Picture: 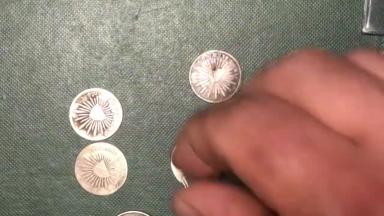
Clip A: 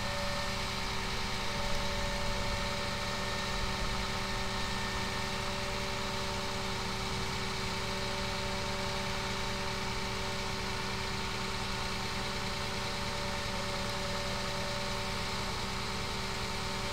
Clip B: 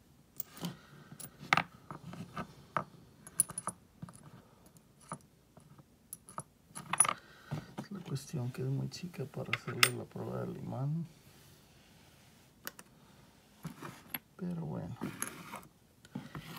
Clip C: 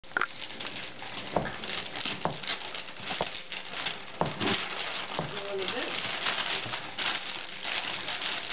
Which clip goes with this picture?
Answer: B